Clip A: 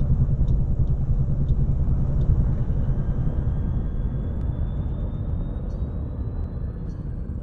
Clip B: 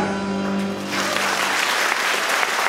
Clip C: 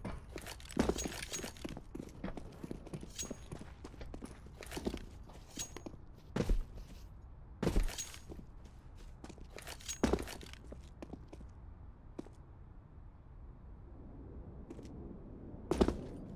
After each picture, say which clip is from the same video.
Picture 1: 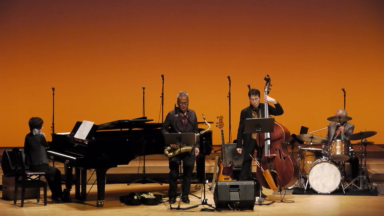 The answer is B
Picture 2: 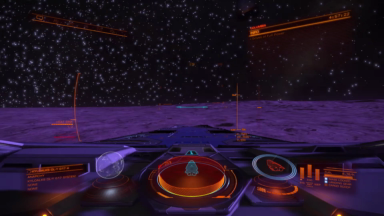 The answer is A